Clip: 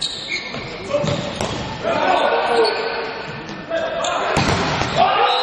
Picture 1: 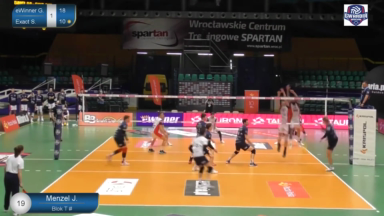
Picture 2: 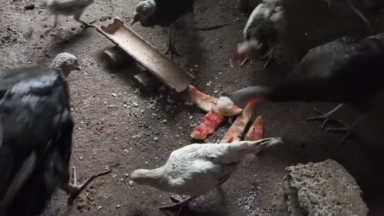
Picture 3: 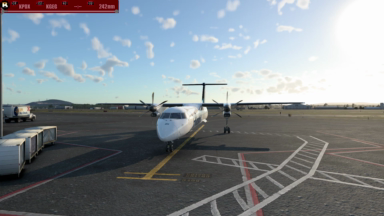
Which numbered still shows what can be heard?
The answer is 1